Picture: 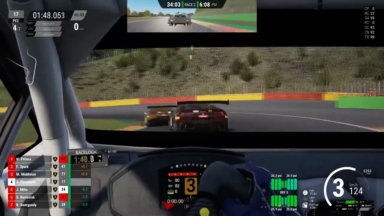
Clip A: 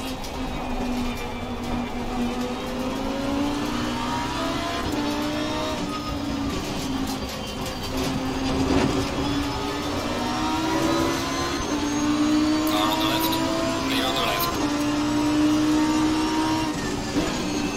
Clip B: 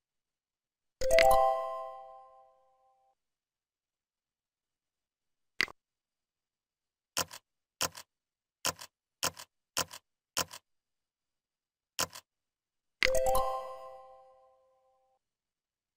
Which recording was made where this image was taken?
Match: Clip A